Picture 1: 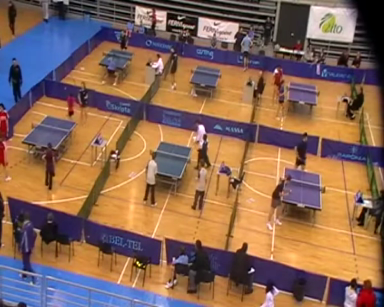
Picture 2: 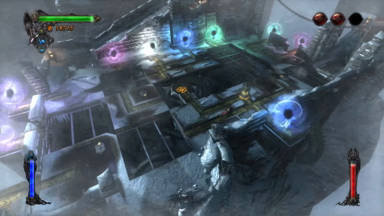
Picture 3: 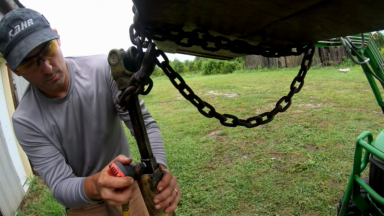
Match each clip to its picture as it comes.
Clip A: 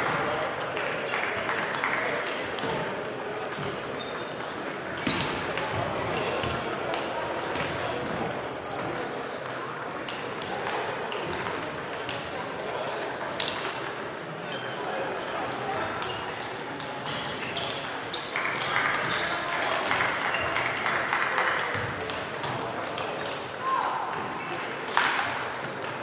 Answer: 1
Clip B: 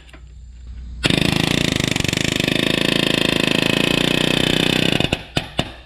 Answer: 3